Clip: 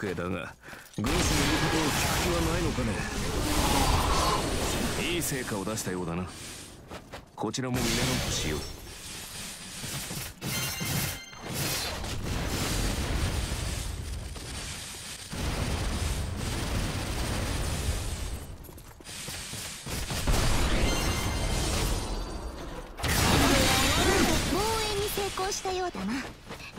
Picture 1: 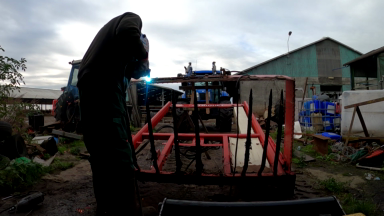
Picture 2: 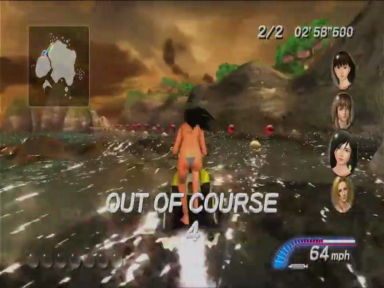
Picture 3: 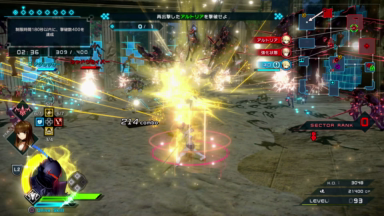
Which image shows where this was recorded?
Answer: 3